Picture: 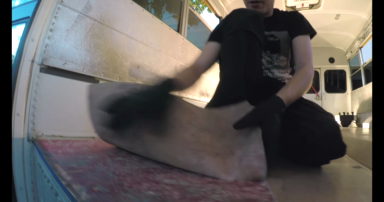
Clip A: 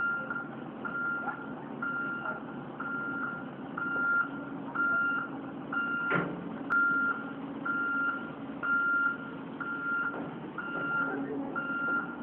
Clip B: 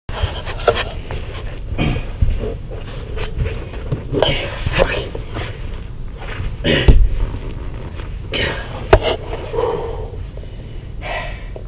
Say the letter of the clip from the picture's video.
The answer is B